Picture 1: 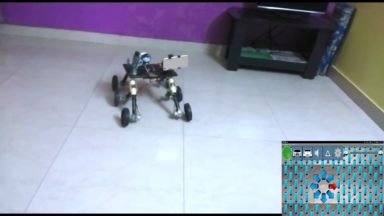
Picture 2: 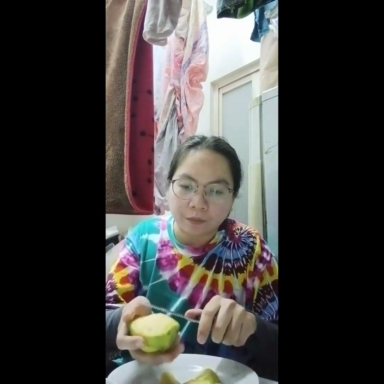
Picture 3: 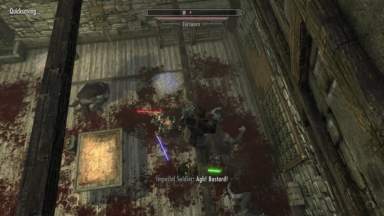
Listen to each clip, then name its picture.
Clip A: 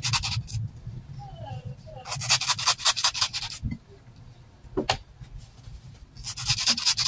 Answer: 2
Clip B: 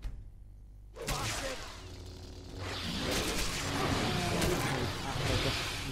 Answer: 3